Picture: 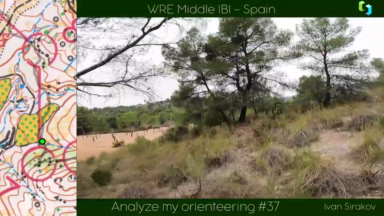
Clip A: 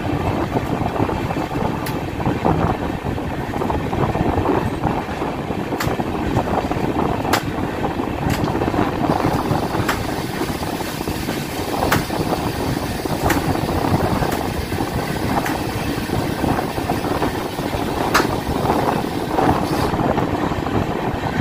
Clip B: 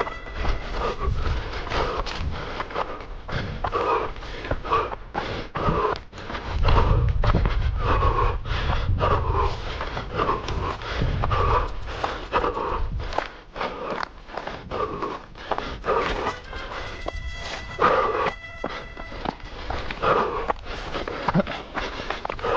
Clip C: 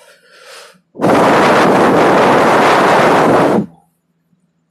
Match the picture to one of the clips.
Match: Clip B